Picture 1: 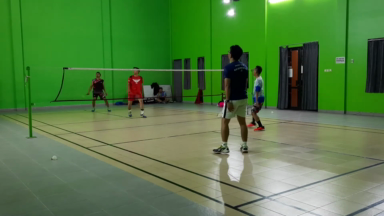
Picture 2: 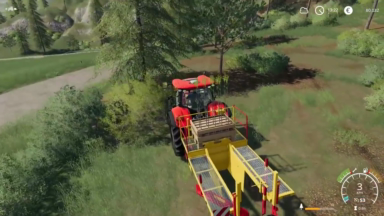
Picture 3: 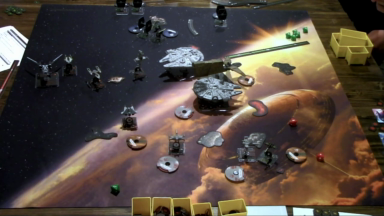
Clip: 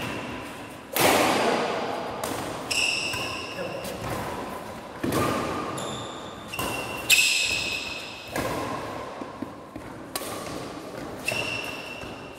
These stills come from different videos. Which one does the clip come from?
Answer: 1